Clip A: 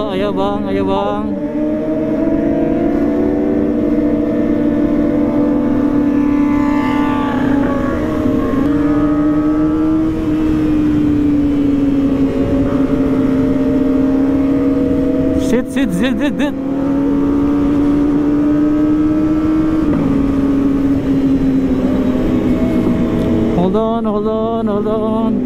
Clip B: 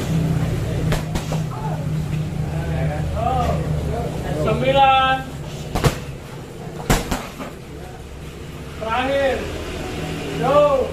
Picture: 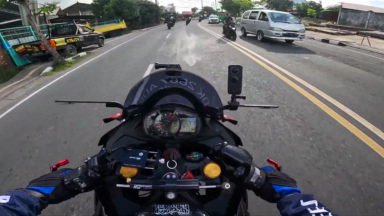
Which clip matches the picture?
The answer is A